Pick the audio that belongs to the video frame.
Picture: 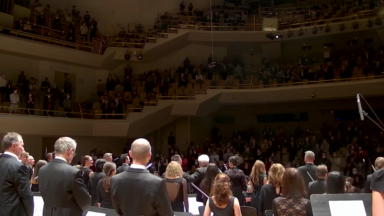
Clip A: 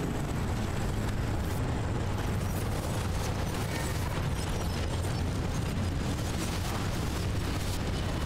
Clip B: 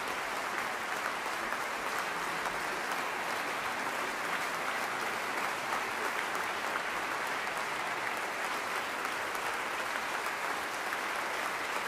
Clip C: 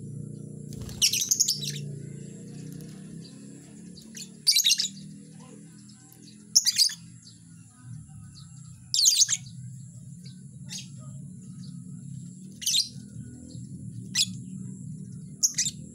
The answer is B